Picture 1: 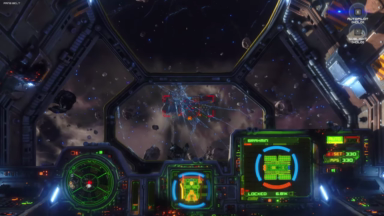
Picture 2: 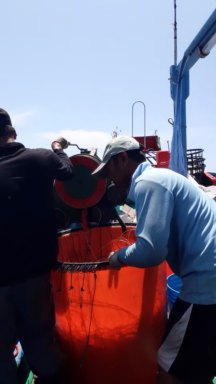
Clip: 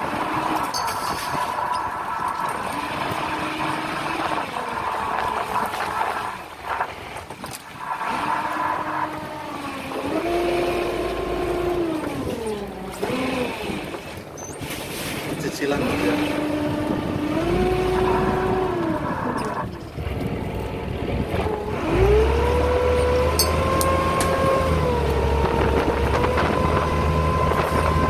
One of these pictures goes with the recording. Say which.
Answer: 2